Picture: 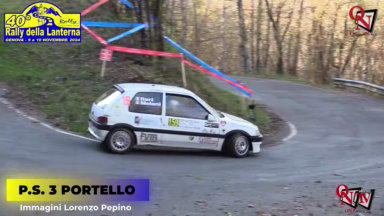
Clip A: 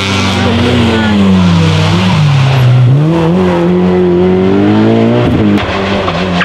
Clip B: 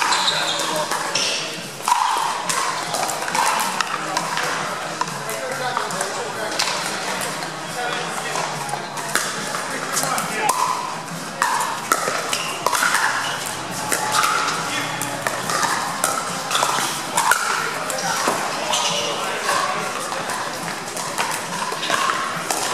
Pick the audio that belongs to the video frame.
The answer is A